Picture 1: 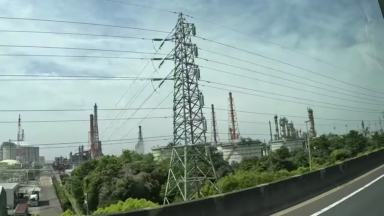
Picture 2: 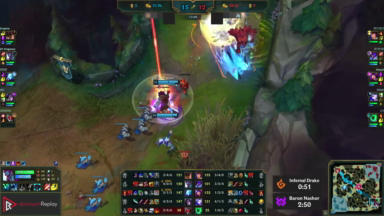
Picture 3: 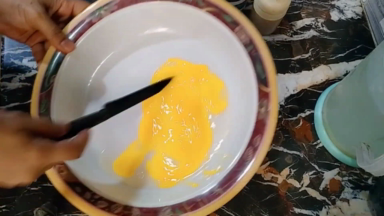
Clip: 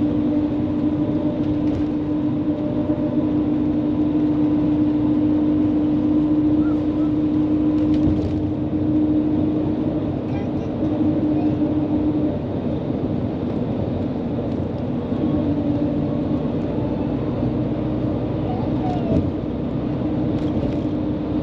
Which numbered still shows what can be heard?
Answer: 1